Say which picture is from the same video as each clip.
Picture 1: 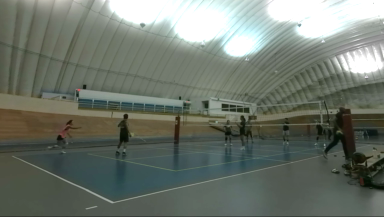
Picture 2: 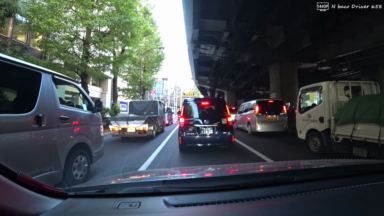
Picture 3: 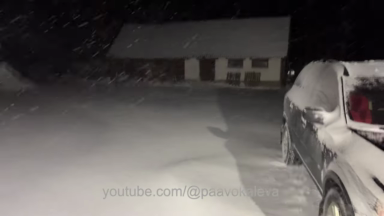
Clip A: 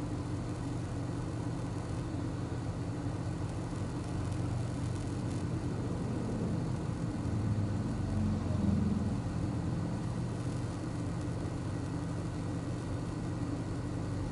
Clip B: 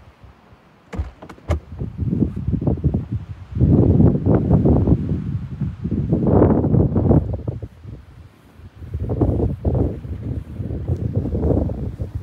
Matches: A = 2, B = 3